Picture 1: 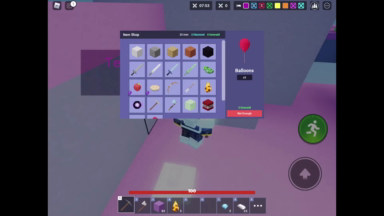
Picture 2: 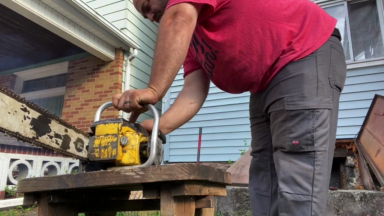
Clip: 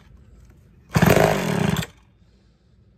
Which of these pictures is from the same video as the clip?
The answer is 2